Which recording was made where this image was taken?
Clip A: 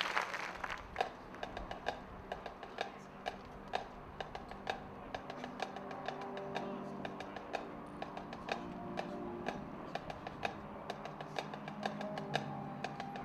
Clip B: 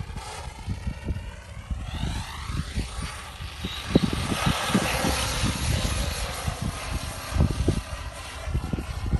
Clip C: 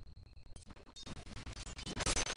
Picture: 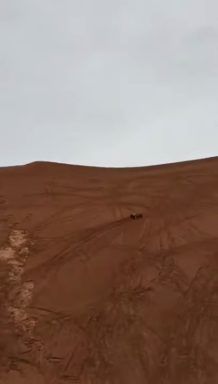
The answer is B